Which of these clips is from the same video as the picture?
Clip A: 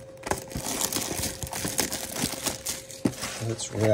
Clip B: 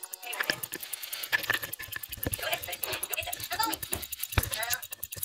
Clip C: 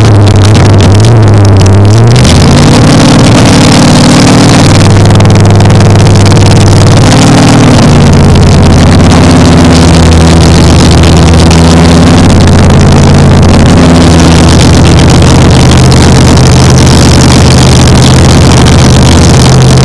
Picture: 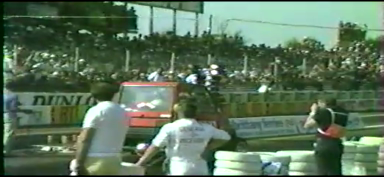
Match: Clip C